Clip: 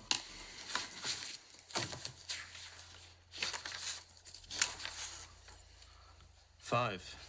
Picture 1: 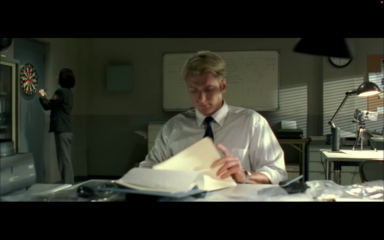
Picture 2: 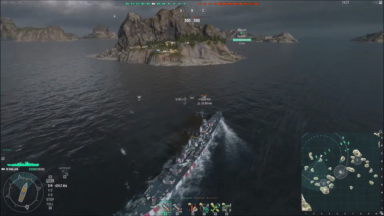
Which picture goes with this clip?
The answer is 1